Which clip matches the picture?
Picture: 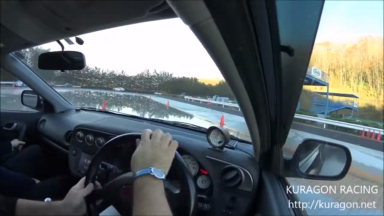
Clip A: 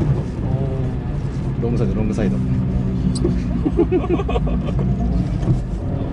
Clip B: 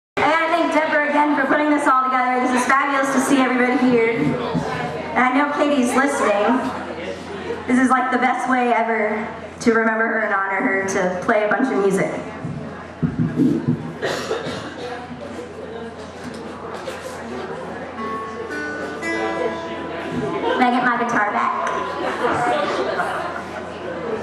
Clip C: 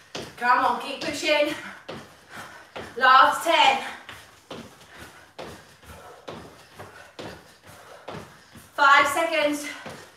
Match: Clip A